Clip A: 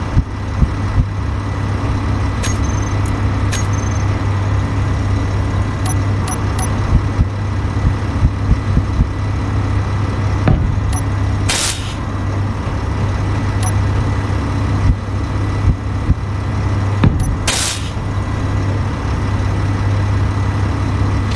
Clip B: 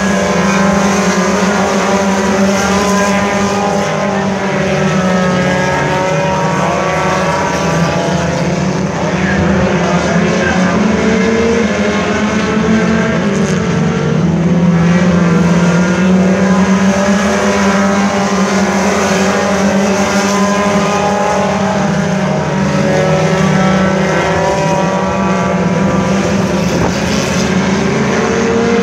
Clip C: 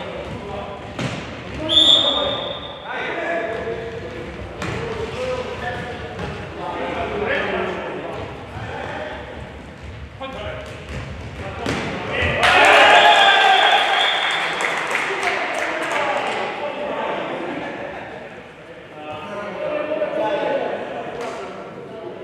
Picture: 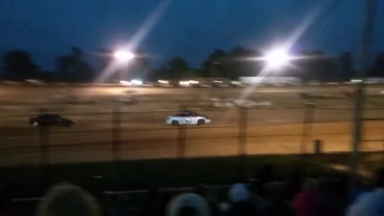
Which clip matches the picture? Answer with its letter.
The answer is B